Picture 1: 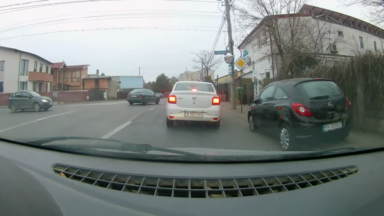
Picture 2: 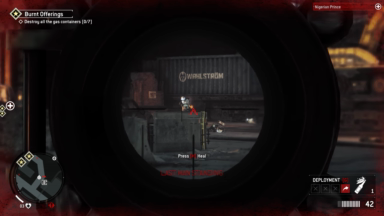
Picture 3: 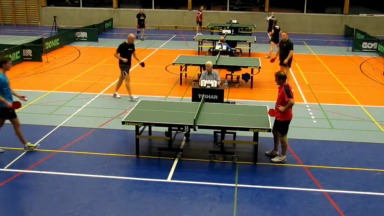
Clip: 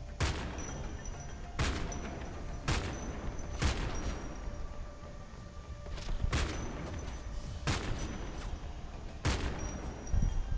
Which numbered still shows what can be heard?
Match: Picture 2